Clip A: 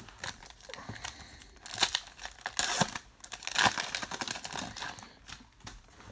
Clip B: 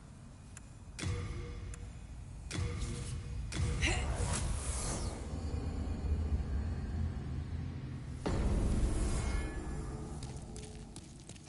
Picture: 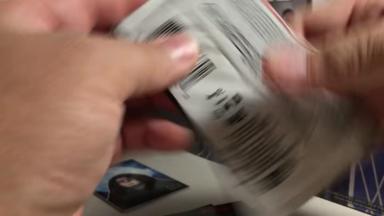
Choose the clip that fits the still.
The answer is A